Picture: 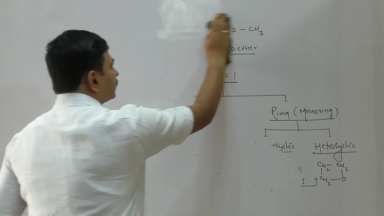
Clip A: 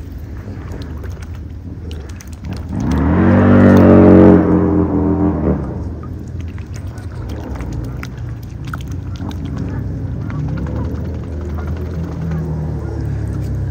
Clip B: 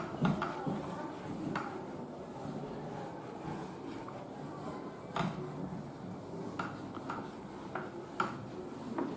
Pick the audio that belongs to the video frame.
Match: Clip B